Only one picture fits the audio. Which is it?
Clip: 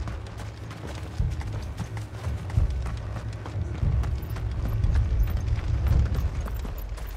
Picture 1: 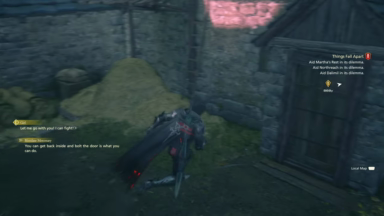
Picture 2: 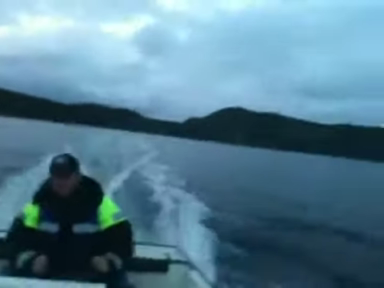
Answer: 1